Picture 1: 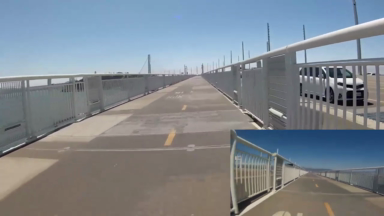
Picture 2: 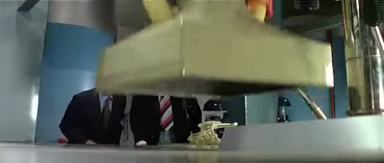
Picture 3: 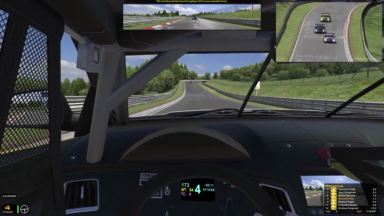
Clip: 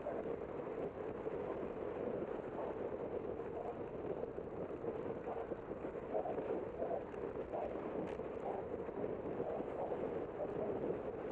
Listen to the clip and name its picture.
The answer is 1